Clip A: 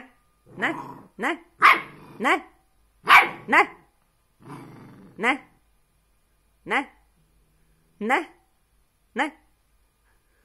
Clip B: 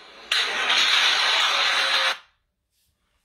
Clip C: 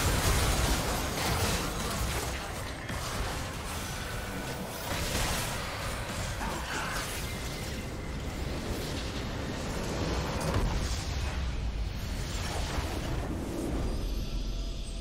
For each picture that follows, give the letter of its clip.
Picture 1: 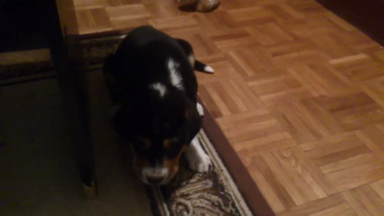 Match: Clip A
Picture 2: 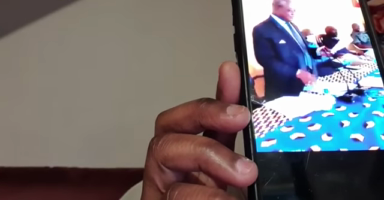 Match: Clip B